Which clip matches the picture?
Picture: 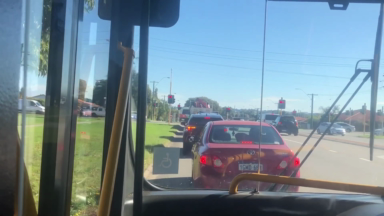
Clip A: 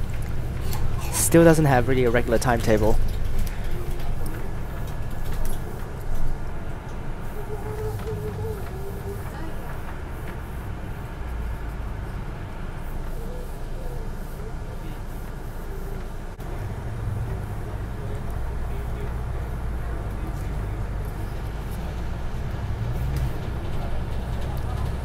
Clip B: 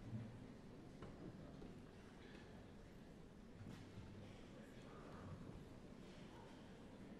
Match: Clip A